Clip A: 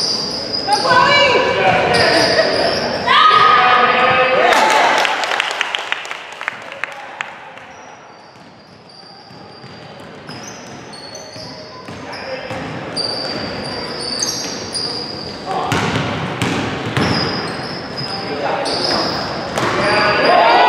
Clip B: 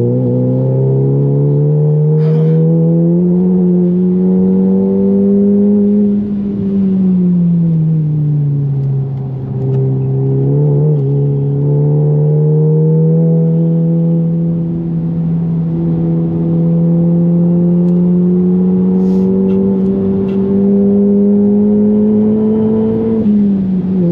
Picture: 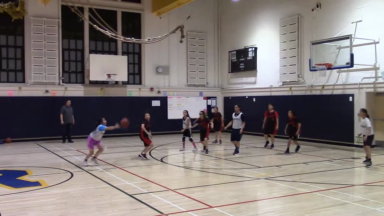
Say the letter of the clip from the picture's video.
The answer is A